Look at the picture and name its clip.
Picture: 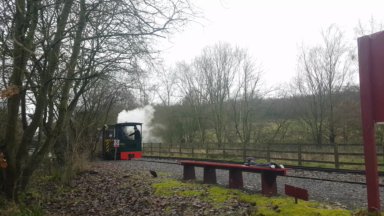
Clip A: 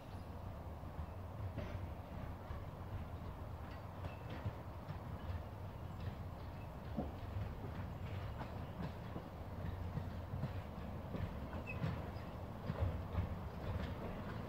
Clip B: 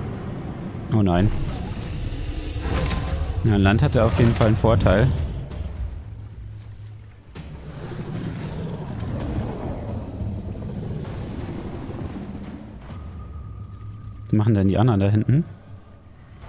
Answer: A